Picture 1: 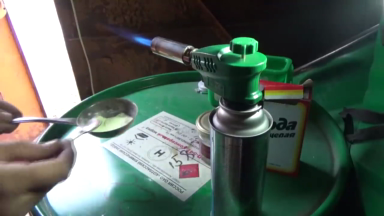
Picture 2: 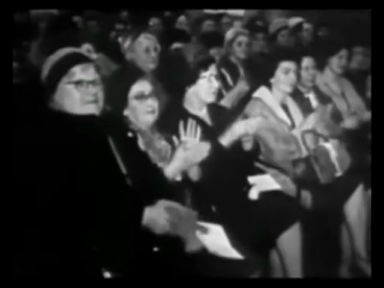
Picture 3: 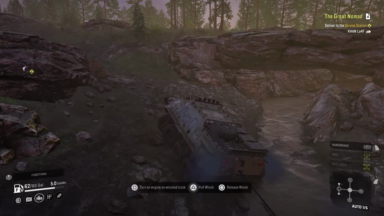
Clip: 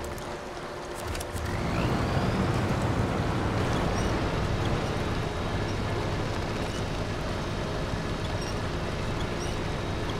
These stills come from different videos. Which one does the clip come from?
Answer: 3